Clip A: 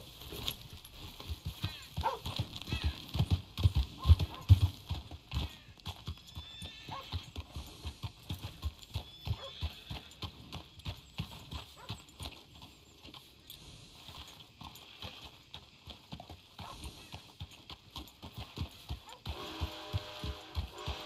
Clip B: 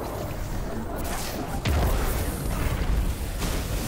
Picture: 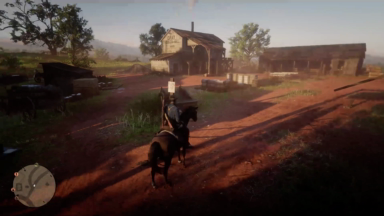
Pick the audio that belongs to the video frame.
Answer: A